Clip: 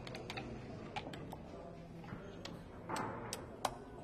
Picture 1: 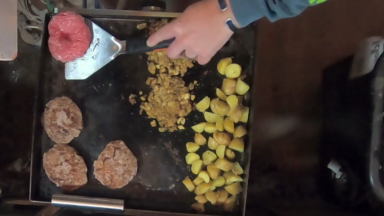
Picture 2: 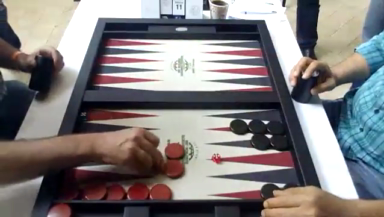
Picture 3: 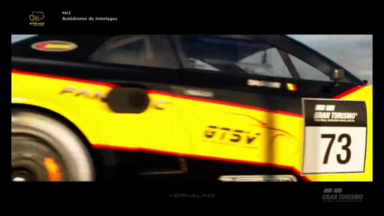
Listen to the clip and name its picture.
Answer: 2